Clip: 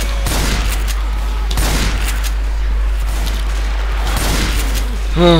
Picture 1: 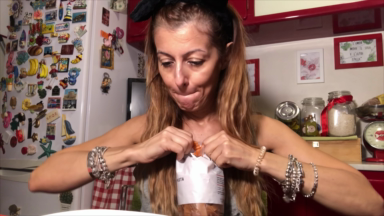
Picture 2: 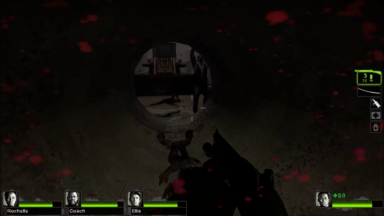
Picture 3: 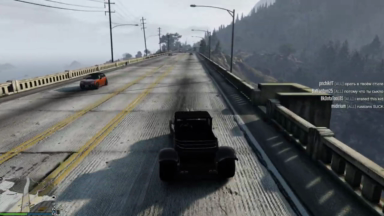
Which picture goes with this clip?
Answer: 2